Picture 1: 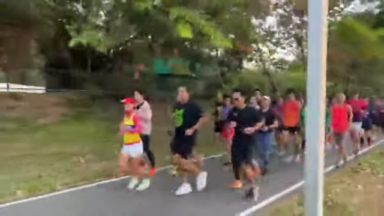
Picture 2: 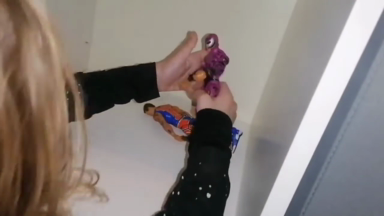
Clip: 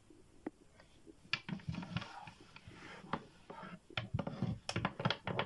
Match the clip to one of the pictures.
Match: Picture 2